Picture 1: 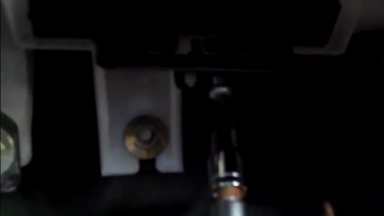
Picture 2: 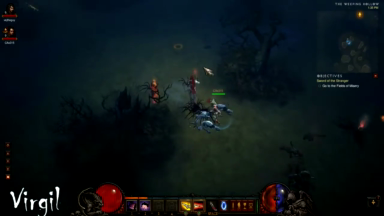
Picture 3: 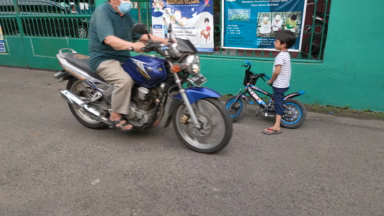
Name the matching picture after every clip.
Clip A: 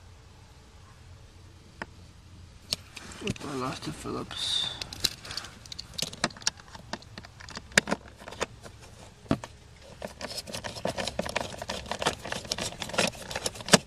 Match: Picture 1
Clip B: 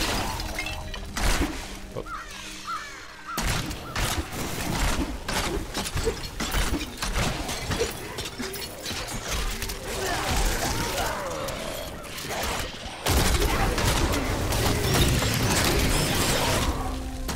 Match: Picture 2